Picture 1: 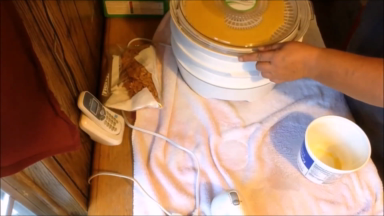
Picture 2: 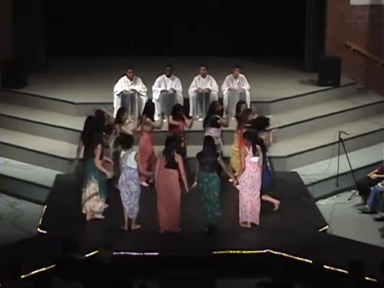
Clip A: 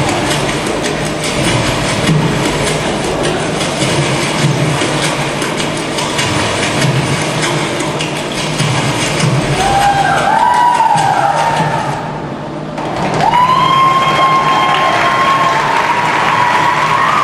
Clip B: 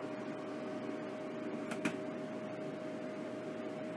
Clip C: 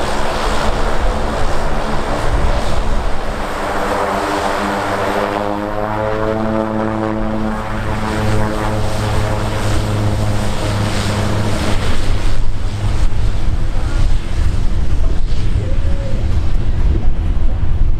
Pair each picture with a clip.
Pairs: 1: B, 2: A